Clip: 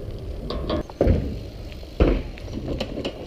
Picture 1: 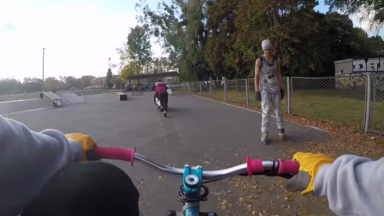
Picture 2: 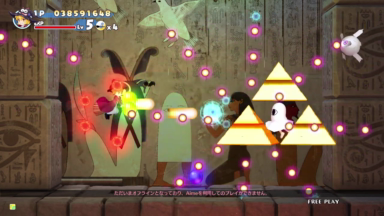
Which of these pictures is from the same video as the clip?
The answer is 1